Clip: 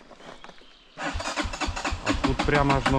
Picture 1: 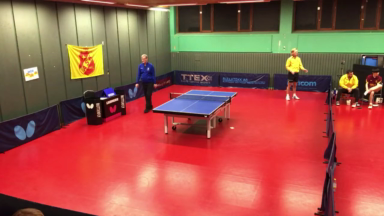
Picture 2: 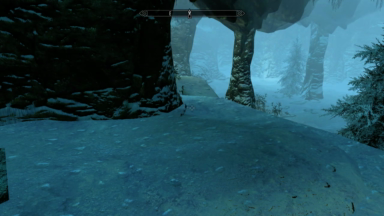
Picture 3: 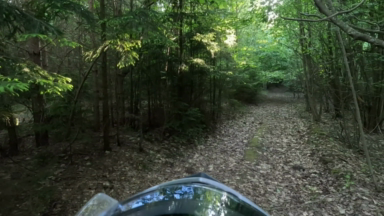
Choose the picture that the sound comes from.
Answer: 3